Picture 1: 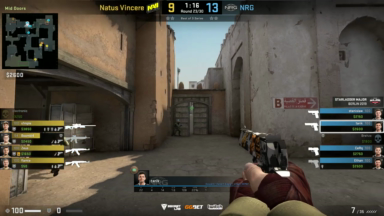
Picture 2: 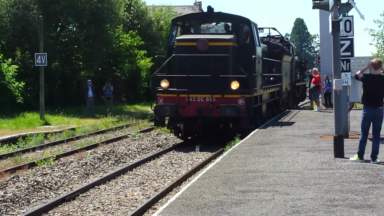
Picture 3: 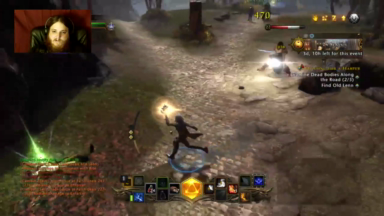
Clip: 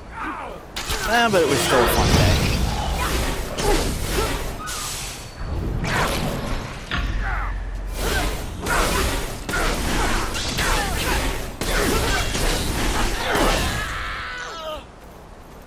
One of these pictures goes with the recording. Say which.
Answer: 3